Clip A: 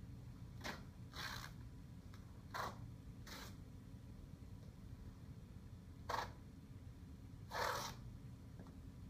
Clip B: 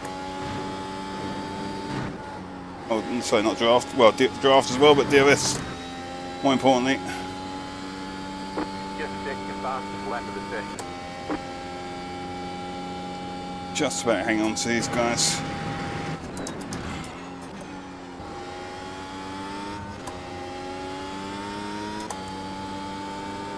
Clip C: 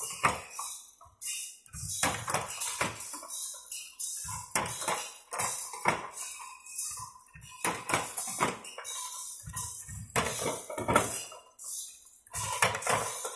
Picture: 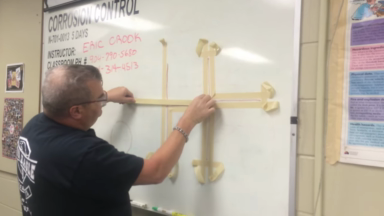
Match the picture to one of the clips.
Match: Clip A